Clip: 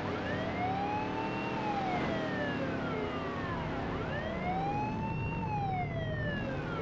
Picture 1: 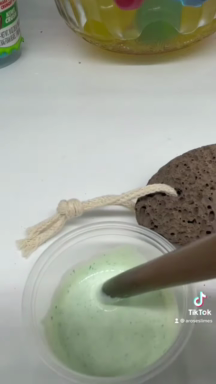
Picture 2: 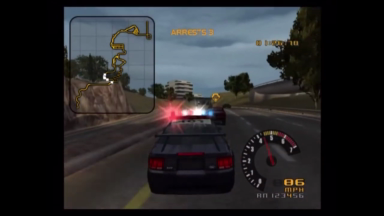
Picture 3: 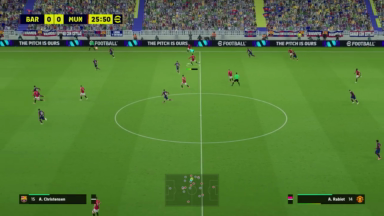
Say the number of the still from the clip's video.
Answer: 2